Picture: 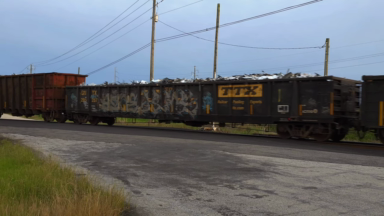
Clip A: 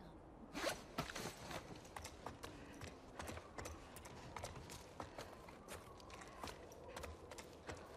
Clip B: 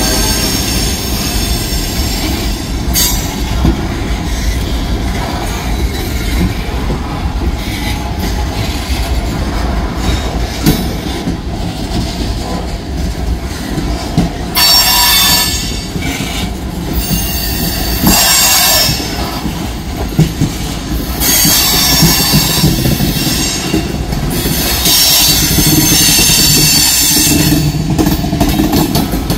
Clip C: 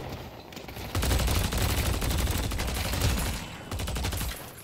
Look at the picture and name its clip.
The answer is B